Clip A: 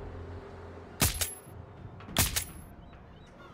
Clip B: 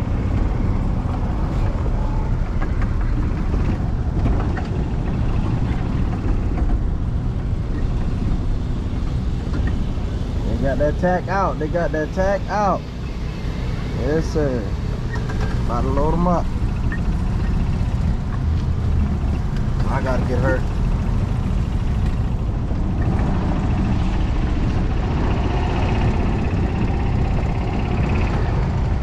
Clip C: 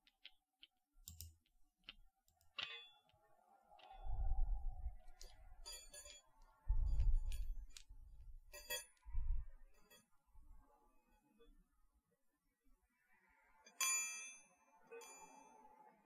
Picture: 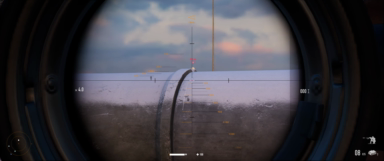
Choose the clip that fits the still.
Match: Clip A